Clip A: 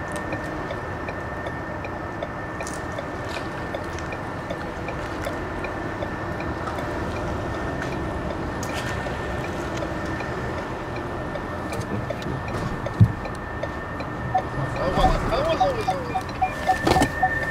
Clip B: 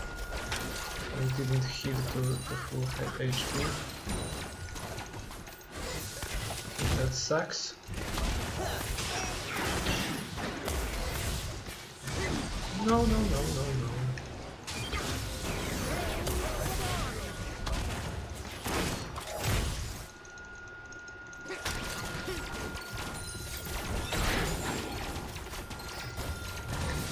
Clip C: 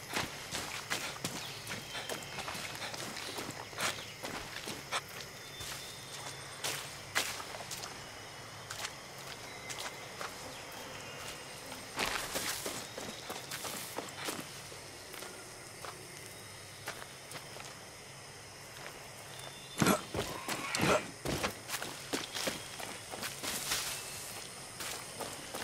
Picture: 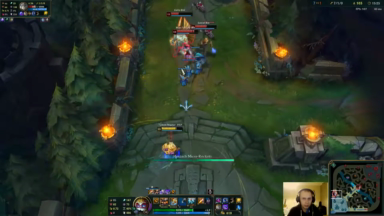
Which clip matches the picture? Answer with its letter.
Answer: B